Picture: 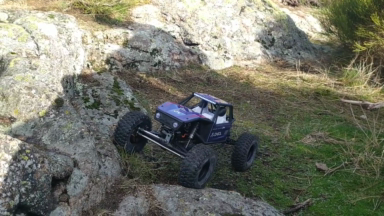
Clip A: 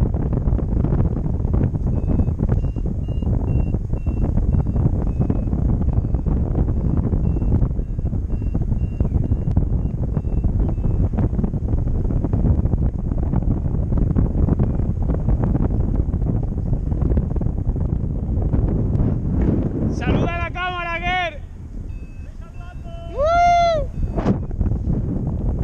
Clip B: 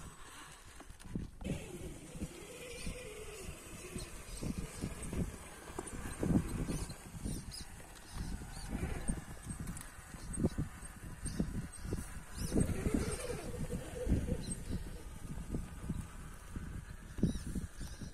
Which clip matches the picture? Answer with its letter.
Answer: B